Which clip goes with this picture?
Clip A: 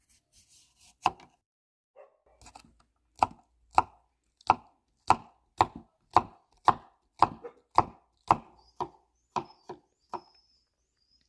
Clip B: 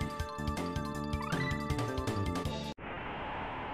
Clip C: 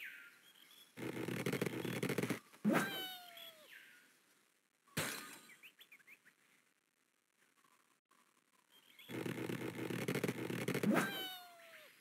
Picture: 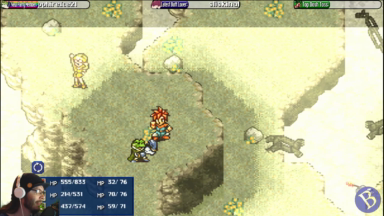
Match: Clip B